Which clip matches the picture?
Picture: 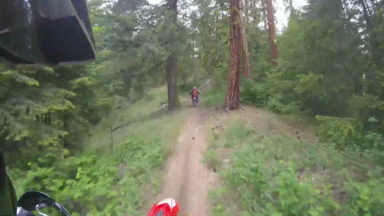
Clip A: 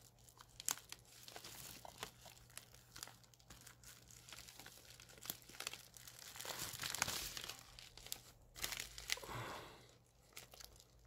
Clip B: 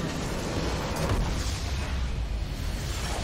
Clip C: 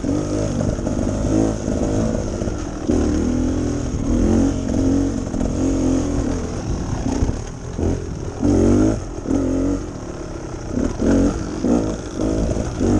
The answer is C